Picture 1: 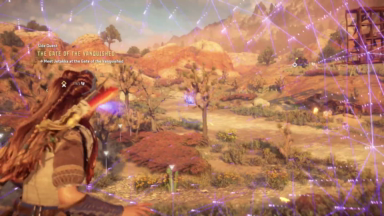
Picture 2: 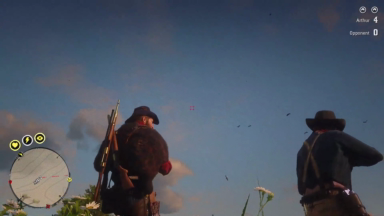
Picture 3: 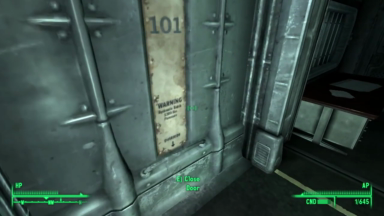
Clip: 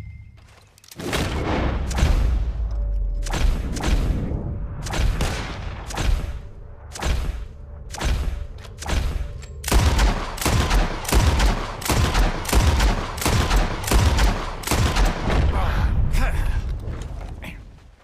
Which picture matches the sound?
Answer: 2